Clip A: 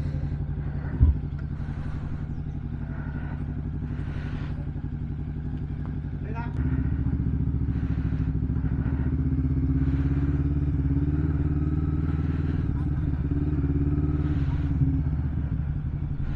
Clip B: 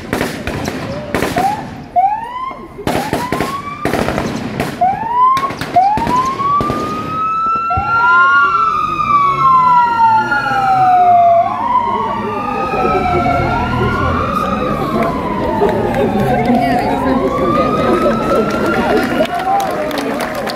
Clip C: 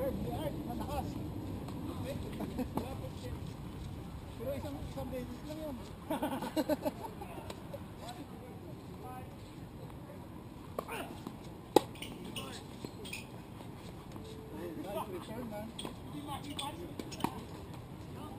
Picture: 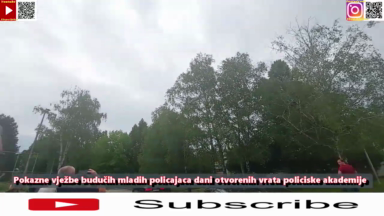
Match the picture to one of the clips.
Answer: B